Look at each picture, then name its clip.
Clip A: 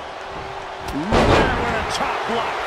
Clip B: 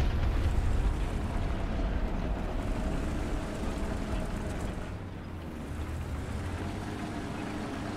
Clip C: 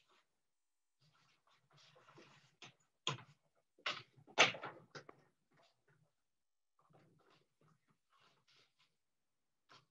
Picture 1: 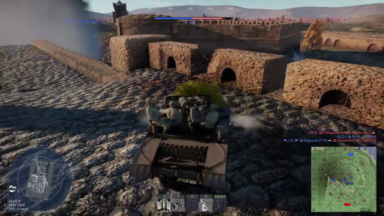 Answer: B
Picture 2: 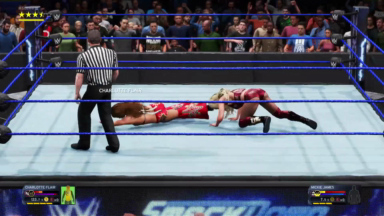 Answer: A